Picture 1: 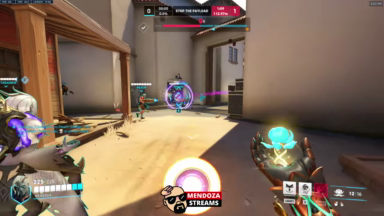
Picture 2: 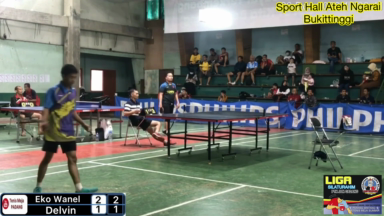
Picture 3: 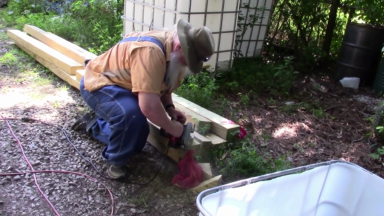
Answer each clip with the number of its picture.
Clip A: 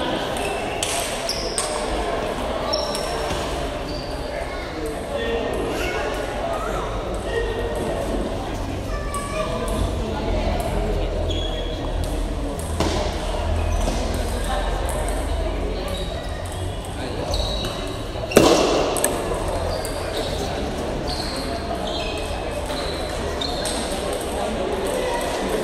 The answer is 2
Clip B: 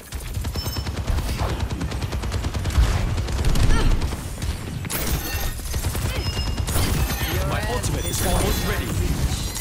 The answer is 1